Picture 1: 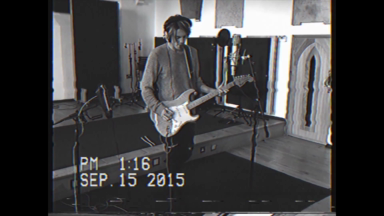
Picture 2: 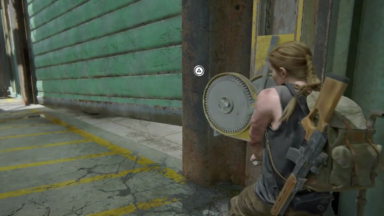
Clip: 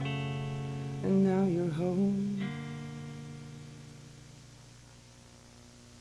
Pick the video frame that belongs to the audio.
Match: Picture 1